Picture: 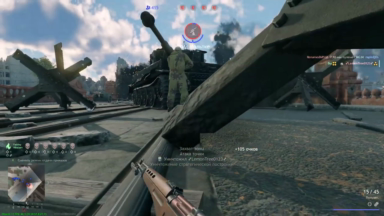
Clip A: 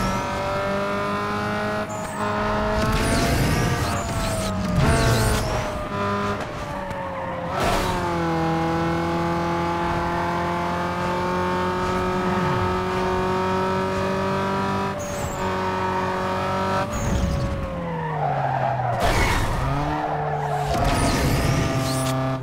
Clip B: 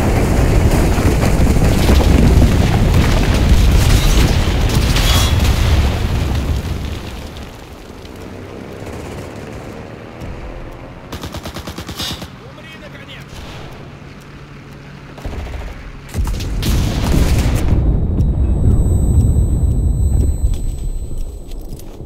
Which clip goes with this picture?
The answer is B